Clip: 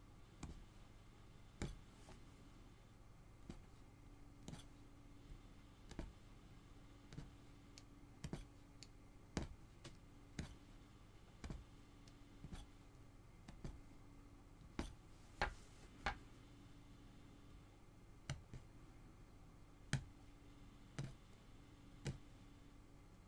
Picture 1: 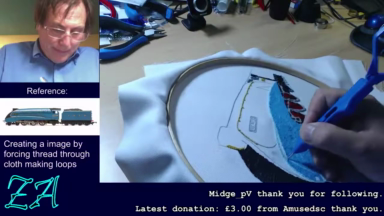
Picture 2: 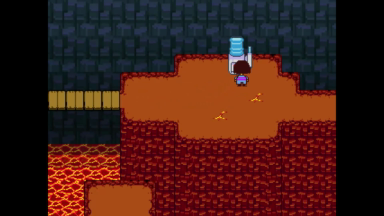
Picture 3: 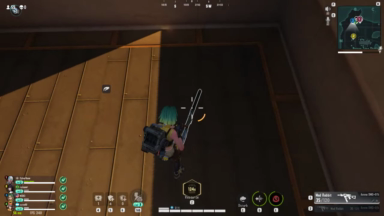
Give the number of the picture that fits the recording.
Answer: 1